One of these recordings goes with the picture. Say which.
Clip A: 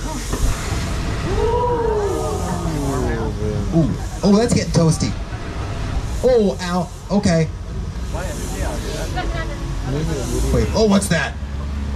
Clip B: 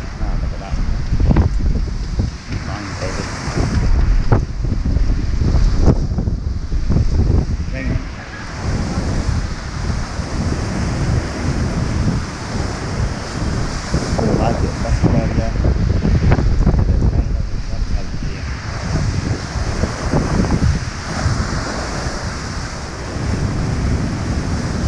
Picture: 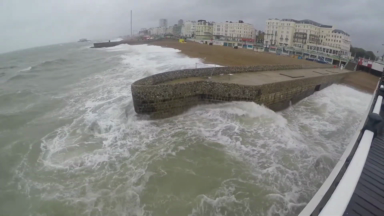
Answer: B